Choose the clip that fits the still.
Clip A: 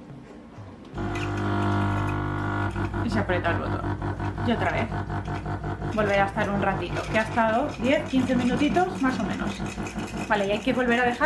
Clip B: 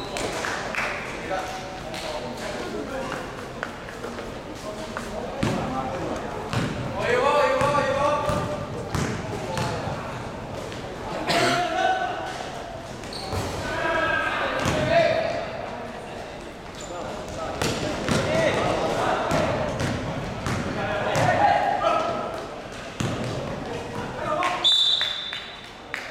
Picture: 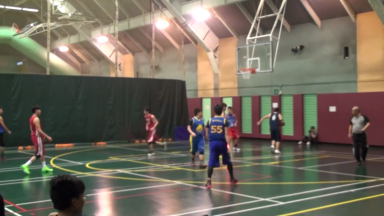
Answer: B